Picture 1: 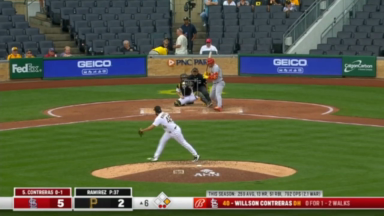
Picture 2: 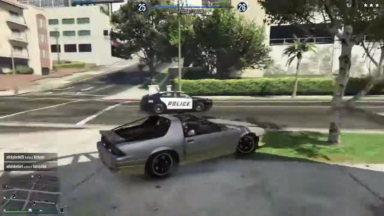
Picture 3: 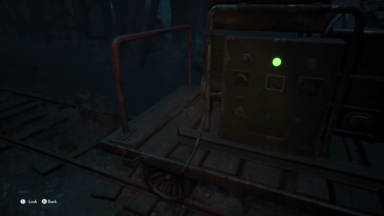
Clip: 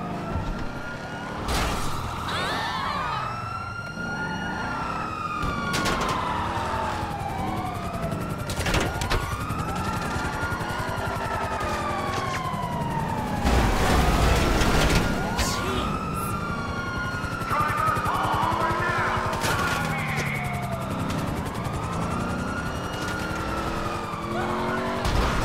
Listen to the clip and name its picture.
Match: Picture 2